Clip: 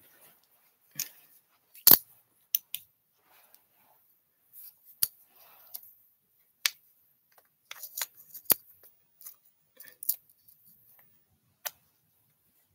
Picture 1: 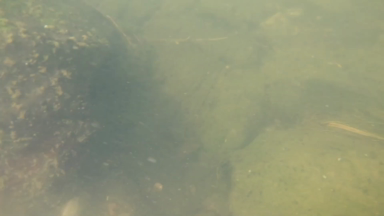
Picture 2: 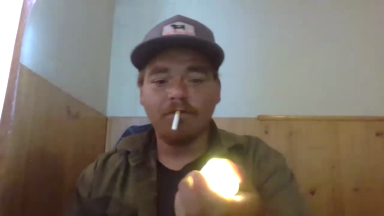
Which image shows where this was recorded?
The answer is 2